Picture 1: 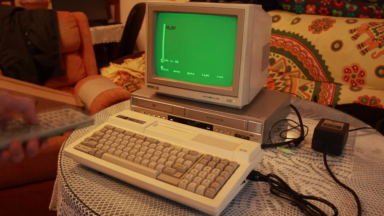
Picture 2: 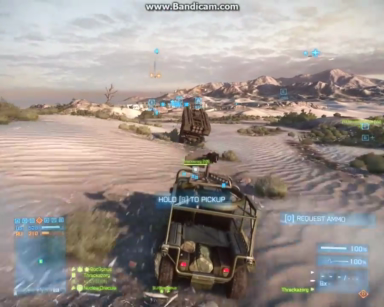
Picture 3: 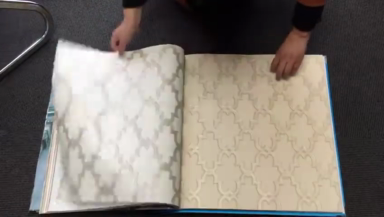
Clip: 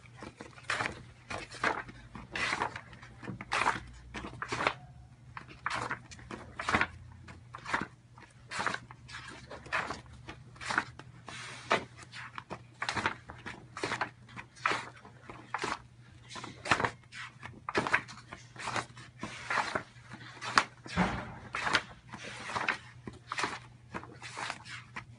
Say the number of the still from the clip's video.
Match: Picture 3